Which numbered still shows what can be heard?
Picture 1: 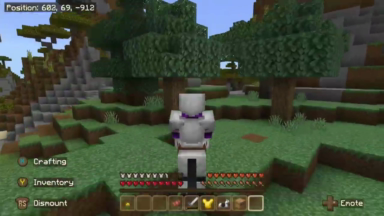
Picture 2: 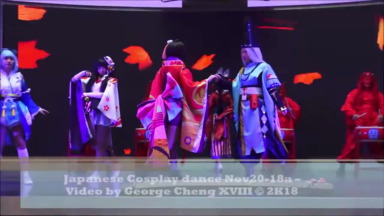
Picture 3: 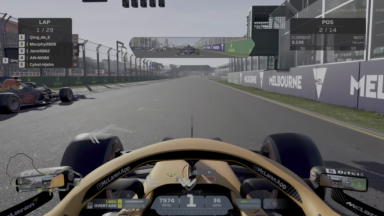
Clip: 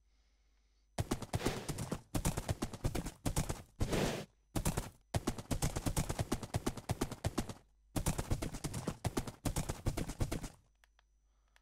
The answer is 1